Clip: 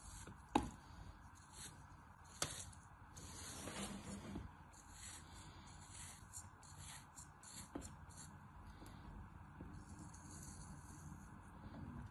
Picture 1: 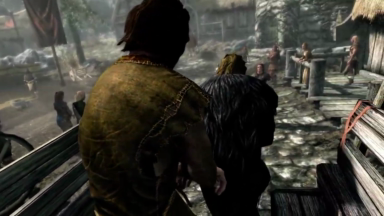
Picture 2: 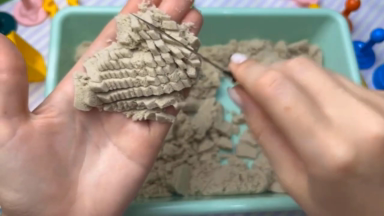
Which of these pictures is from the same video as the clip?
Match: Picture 2